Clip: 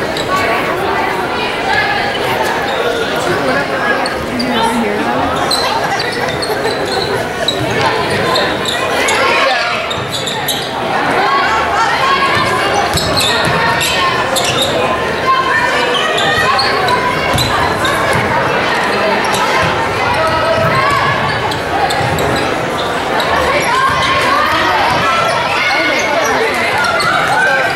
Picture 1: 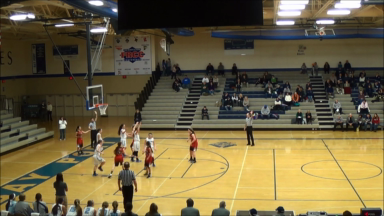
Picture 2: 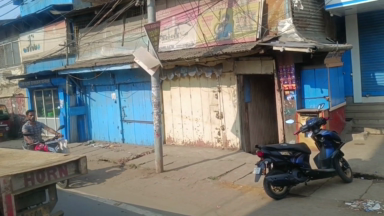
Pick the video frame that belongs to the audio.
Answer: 1